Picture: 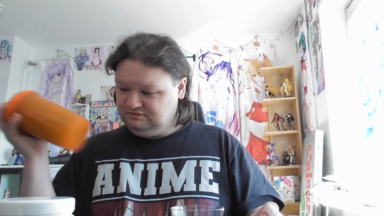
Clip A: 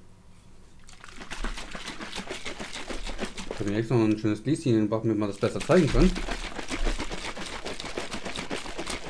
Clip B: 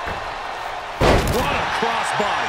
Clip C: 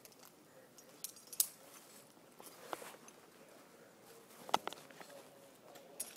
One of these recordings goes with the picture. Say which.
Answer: A